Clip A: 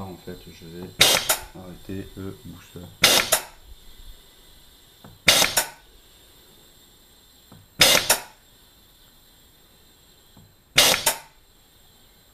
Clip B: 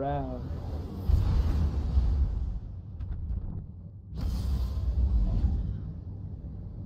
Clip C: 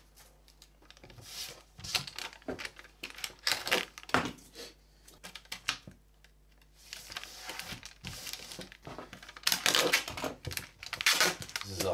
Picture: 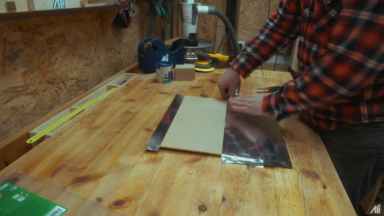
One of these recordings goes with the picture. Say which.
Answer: C